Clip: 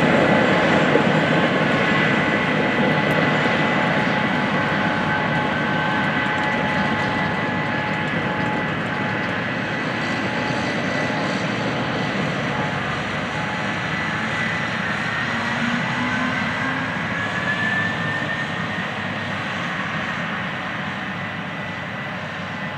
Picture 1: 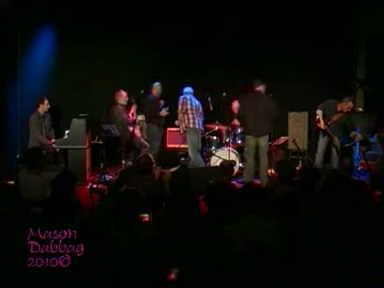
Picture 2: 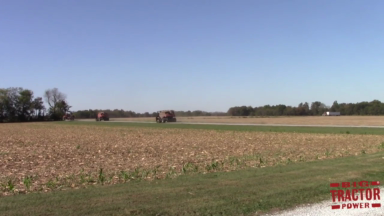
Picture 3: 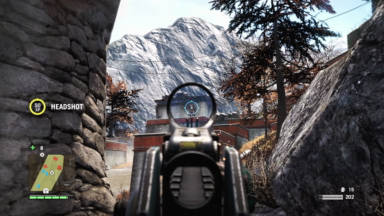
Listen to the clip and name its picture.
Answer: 2